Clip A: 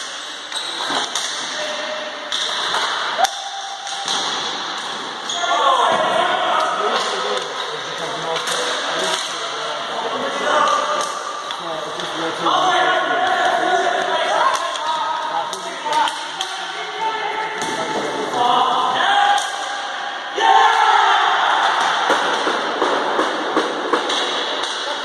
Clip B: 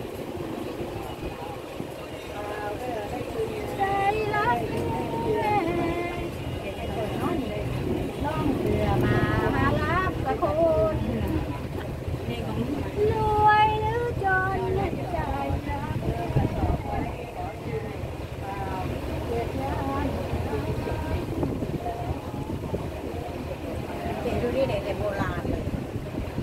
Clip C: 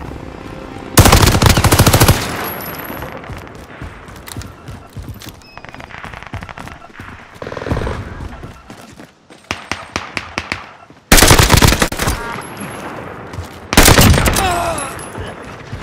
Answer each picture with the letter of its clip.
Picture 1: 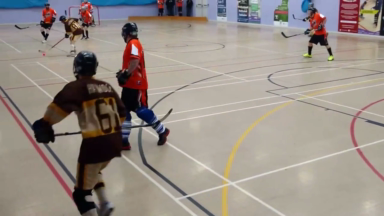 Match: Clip A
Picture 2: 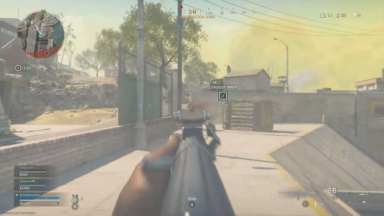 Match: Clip C